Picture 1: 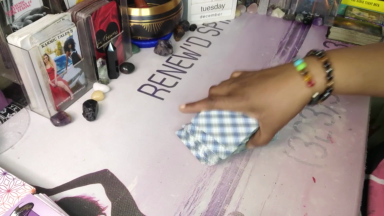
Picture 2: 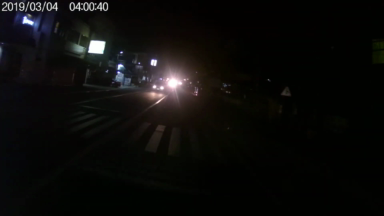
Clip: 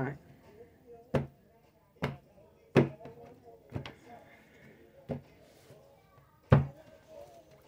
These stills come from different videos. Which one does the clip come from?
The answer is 1